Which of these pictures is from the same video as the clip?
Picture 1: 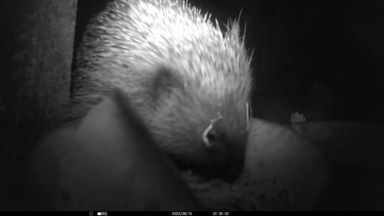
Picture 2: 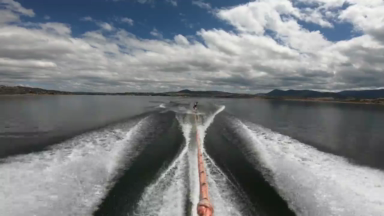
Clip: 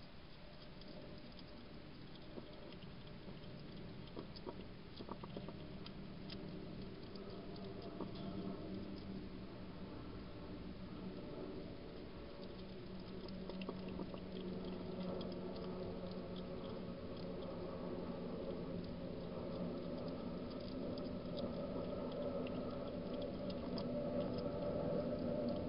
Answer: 1